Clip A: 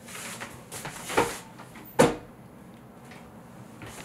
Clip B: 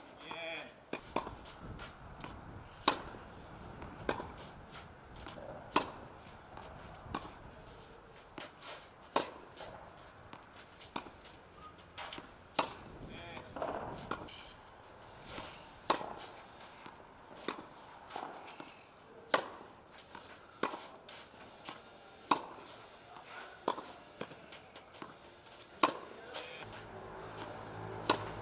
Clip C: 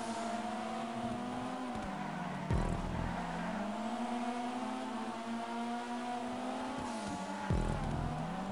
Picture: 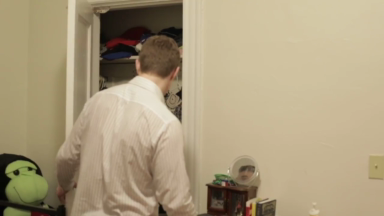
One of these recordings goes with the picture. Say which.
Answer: A